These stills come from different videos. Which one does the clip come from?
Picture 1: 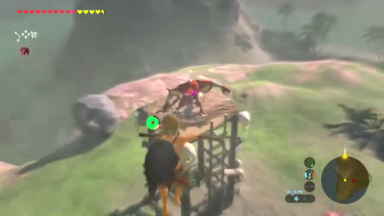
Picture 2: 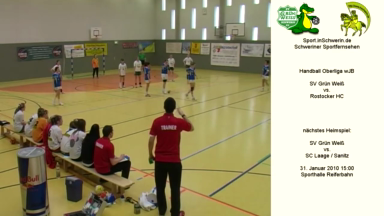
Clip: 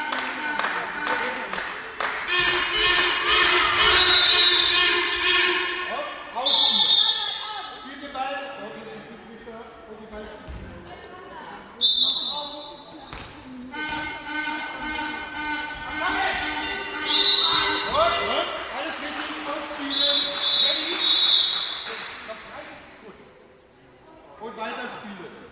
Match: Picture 2